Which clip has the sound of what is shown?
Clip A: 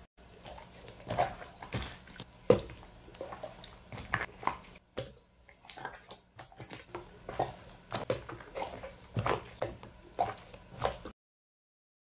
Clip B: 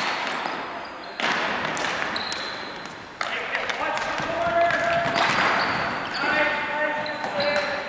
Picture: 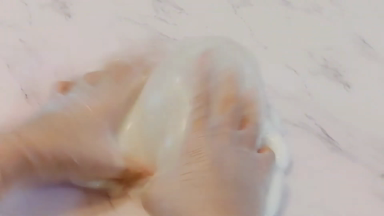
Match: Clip A